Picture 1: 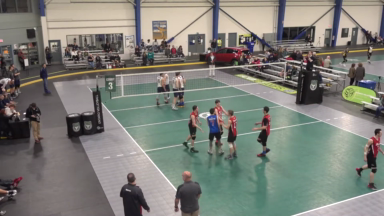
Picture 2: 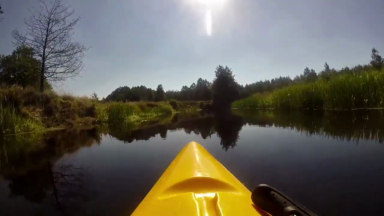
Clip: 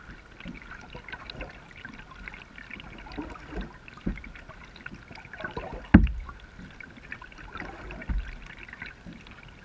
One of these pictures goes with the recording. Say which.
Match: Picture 2